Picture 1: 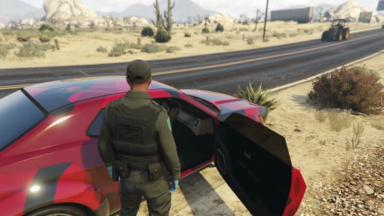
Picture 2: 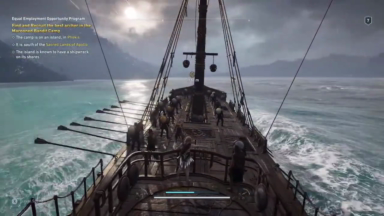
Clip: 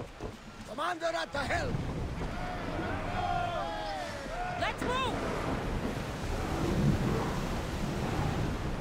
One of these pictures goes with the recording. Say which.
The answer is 2